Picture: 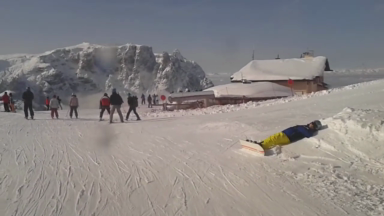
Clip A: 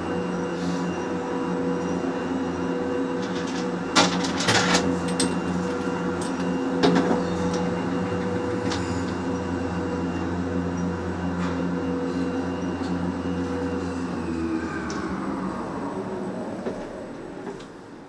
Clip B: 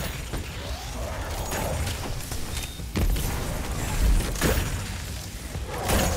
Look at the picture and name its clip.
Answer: A